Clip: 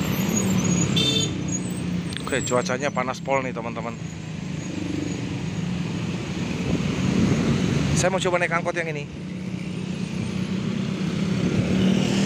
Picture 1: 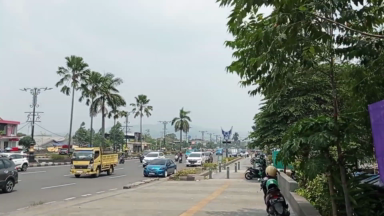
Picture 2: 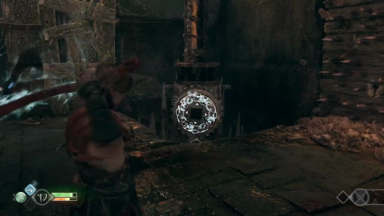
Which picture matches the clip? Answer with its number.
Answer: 1